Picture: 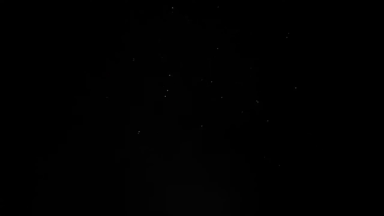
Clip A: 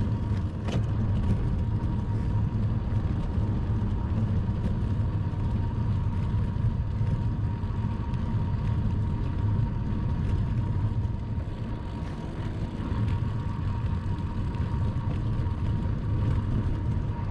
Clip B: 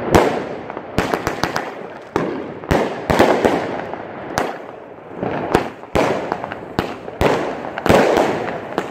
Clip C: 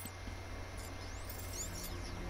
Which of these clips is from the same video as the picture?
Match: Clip B